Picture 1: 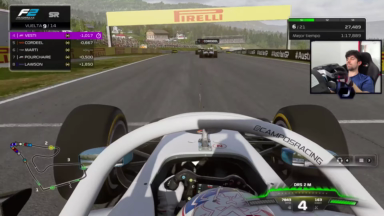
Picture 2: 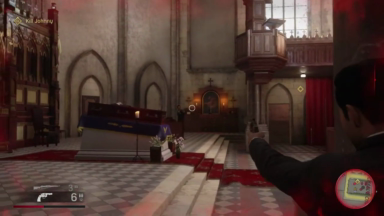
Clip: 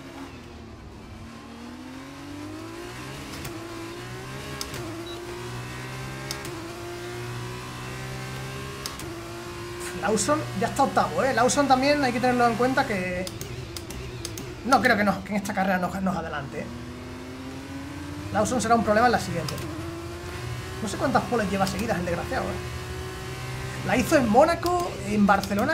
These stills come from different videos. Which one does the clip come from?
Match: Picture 1